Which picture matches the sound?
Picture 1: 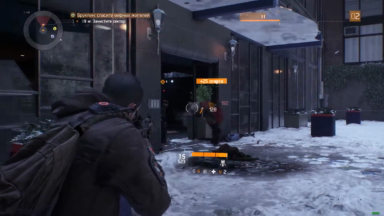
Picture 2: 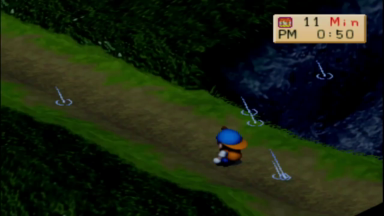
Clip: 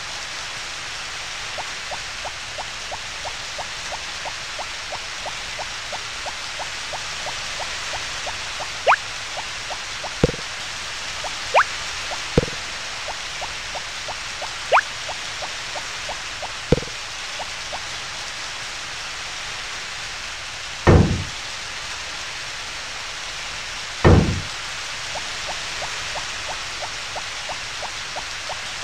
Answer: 2